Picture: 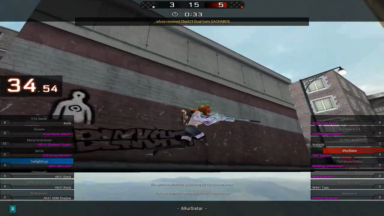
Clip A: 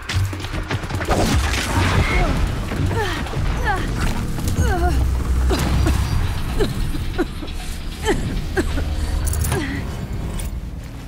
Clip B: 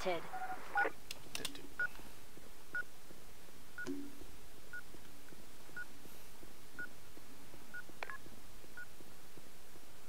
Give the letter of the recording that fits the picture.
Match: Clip B